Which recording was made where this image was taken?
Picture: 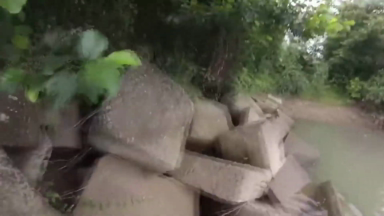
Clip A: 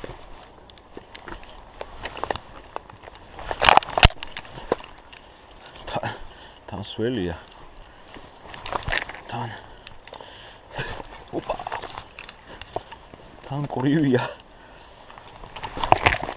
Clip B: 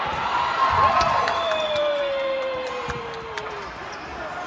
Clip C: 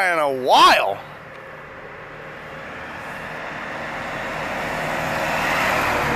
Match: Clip A